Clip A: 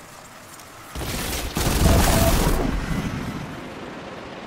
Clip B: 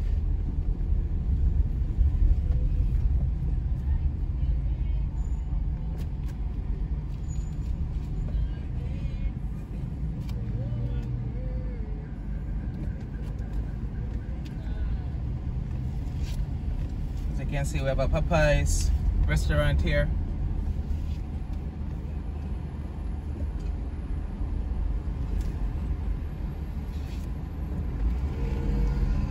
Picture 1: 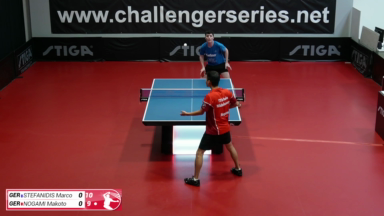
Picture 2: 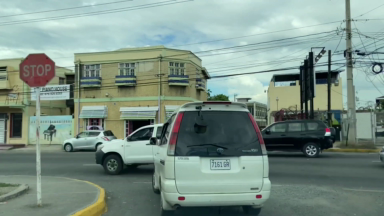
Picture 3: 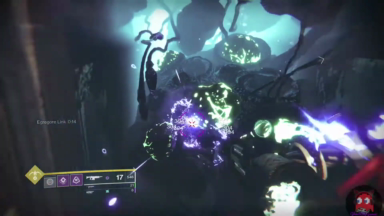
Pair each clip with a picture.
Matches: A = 3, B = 2